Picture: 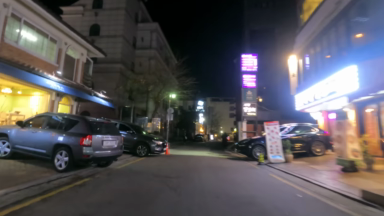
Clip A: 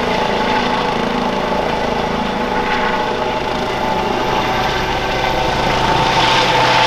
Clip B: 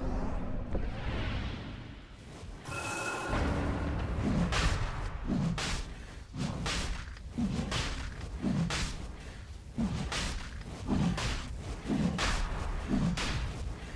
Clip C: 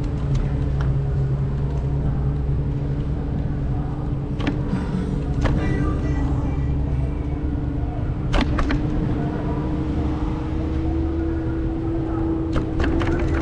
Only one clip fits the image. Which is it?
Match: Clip C